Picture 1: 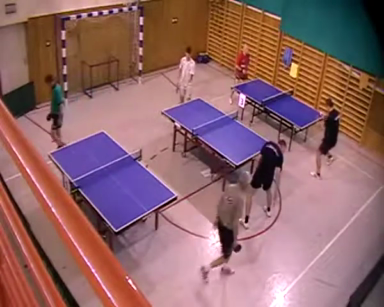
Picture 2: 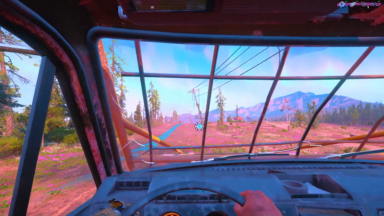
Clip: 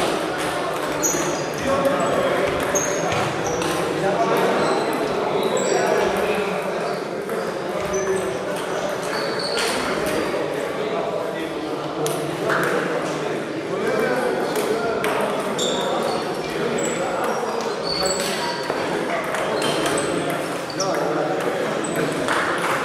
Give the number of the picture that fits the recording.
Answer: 1